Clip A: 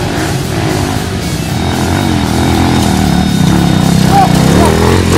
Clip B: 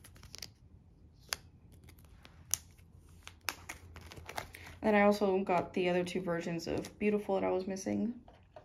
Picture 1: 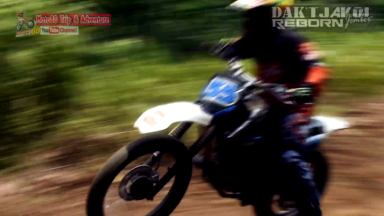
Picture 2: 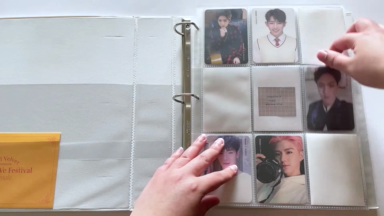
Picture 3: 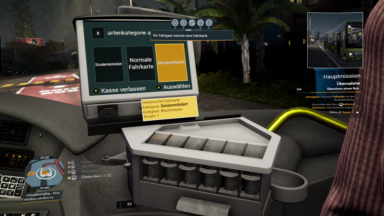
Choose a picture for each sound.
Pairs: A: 1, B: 2